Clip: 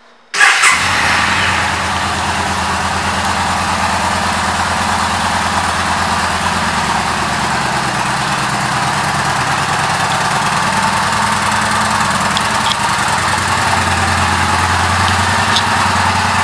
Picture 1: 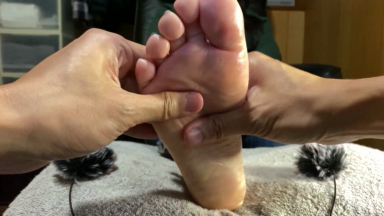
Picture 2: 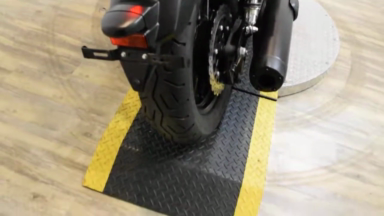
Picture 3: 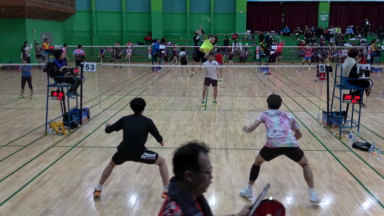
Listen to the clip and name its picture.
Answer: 2